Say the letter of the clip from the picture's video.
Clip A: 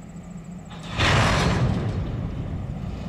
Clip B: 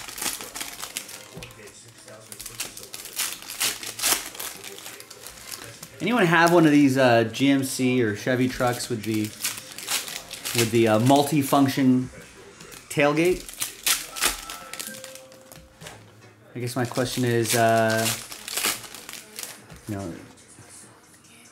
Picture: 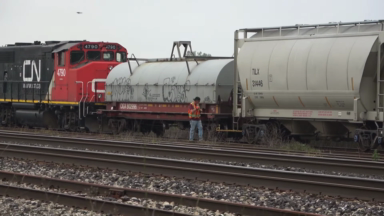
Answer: A